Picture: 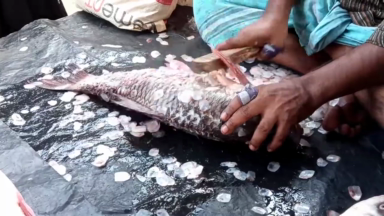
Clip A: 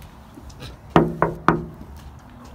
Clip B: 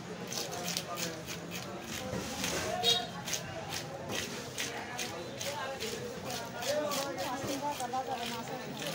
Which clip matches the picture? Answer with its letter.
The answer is B